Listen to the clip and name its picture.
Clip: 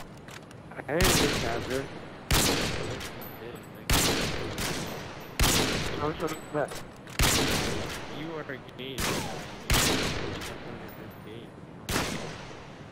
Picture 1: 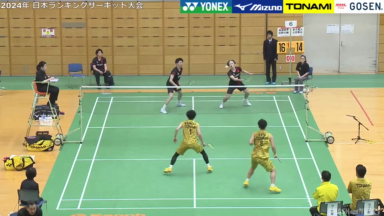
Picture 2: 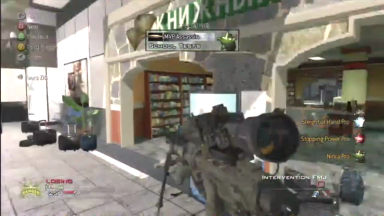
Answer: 2